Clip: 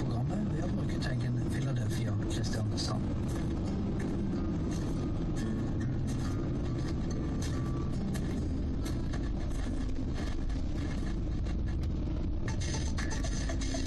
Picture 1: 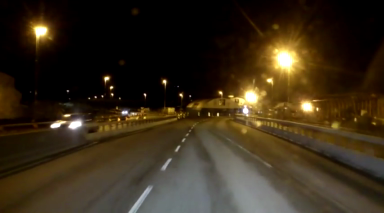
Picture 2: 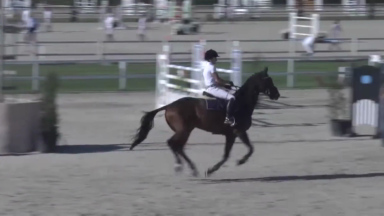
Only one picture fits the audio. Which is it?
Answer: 1